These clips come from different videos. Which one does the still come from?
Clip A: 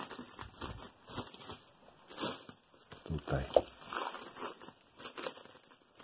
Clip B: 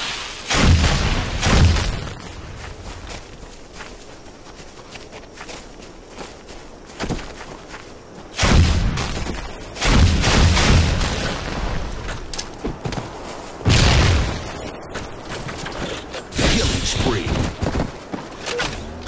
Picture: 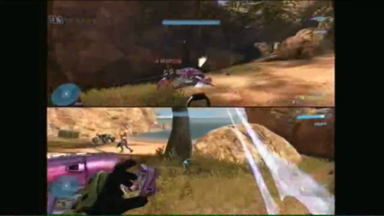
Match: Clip B